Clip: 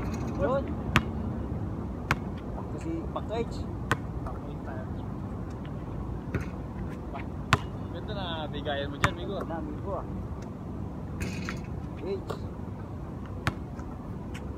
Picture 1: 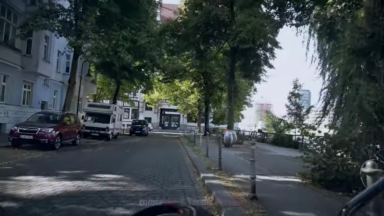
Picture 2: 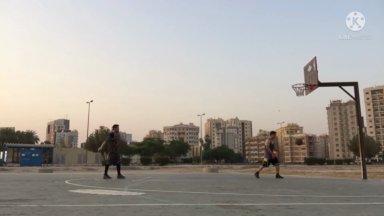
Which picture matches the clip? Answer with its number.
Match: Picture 2